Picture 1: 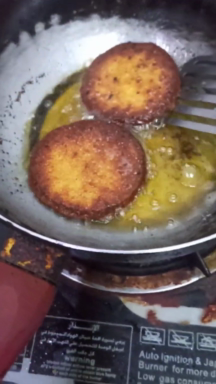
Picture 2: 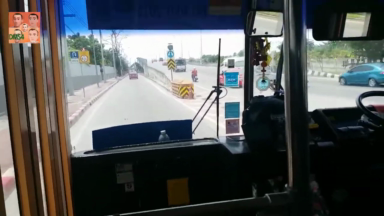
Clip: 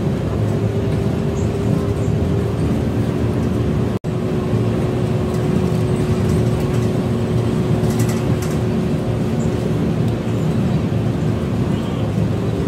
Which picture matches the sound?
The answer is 2